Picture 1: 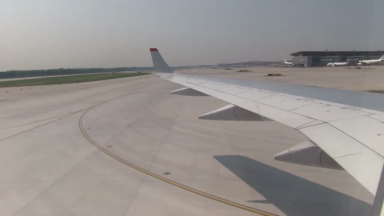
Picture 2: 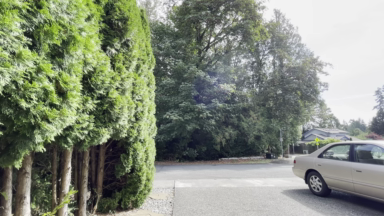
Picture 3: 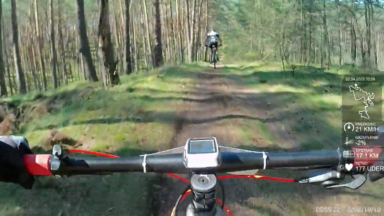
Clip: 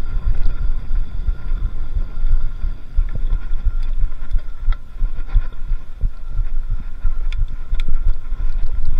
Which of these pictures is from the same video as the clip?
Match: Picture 3